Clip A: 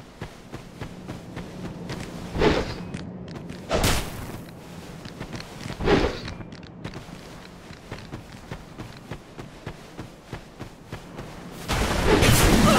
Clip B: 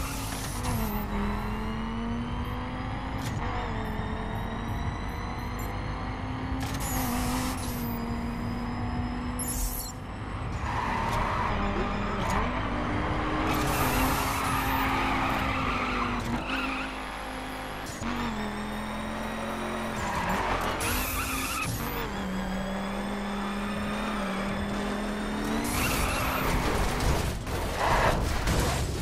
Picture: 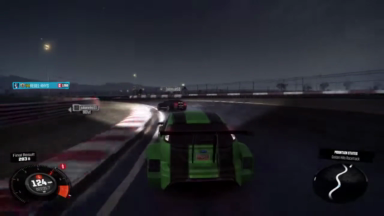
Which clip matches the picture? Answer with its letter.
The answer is B